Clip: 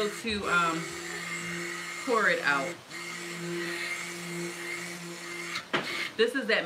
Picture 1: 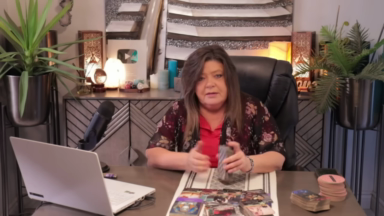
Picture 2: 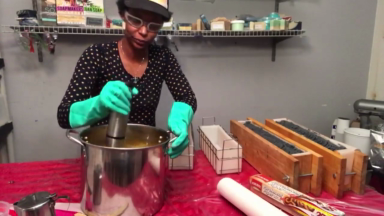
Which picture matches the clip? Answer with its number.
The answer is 2